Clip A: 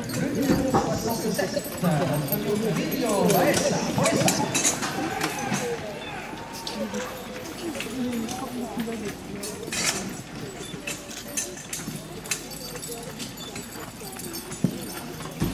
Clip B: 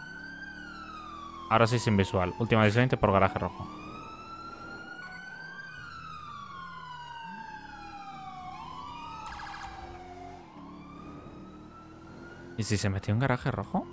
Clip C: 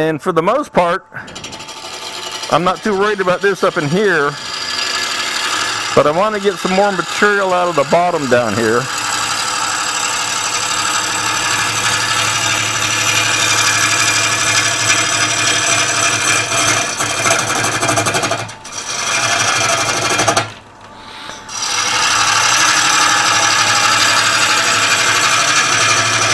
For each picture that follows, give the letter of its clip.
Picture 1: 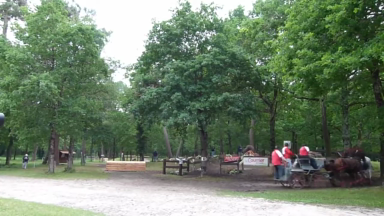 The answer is A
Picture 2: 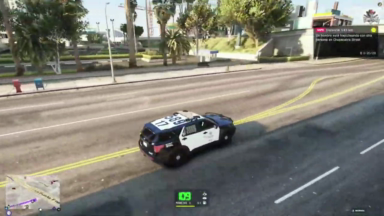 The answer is B